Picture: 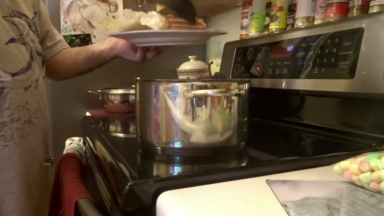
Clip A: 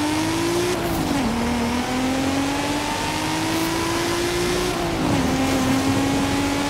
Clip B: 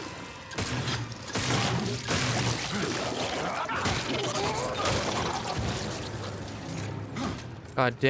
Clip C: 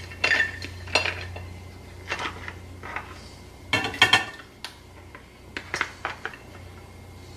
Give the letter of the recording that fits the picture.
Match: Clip C